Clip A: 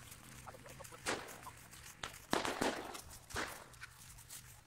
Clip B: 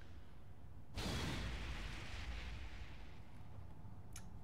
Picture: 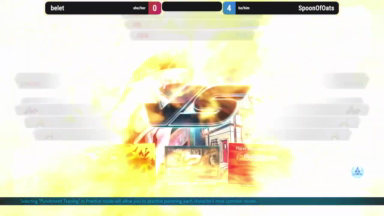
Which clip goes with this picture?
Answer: B